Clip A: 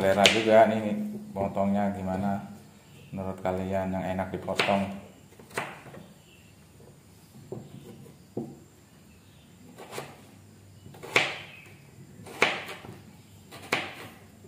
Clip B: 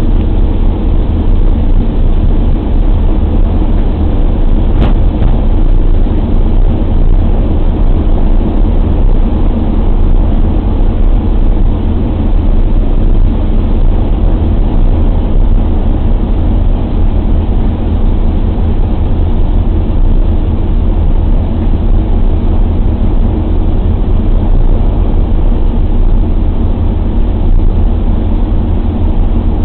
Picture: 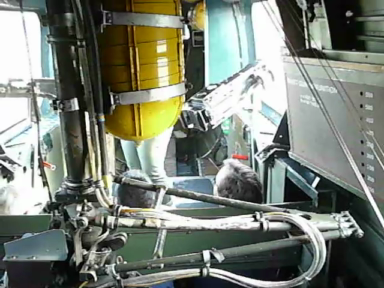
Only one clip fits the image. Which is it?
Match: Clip B